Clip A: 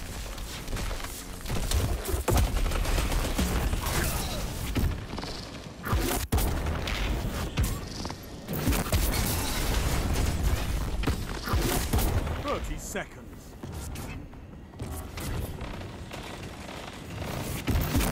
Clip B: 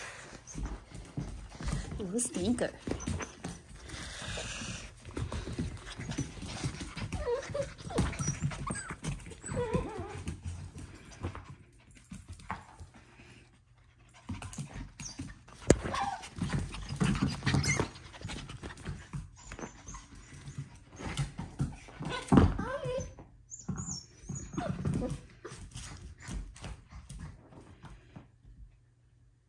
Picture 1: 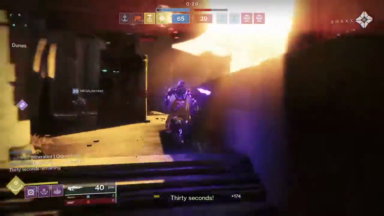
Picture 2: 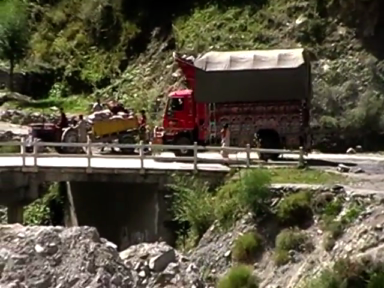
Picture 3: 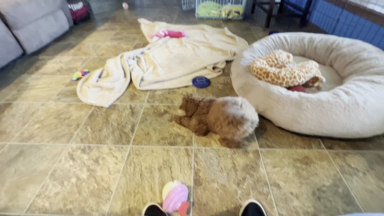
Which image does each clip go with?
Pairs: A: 1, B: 3